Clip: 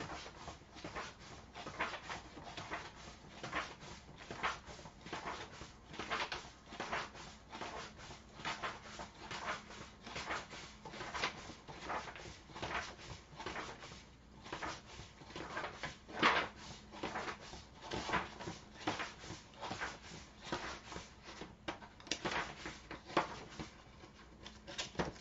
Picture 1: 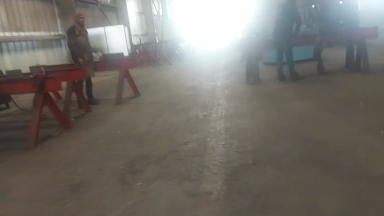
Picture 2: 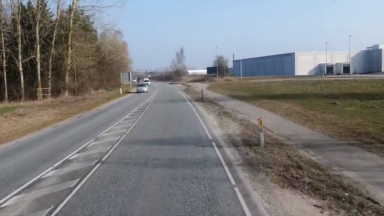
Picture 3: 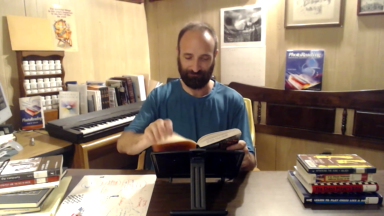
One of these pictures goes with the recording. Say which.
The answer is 3